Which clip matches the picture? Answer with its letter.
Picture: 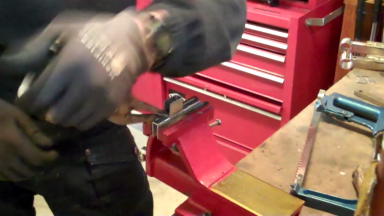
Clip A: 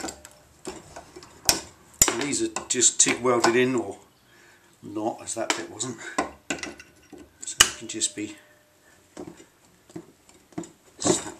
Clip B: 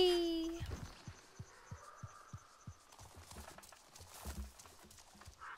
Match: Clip A